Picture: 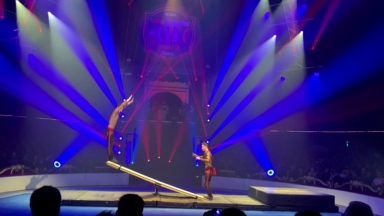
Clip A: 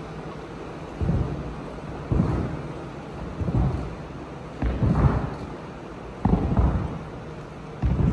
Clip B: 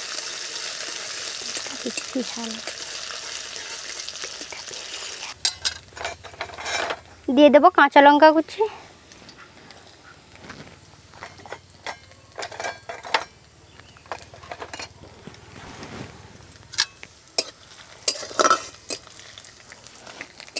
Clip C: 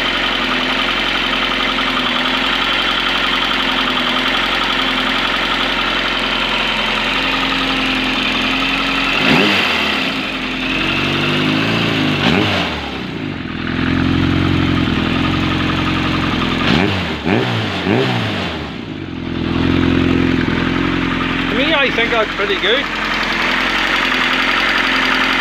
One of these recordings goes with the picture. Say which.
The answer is A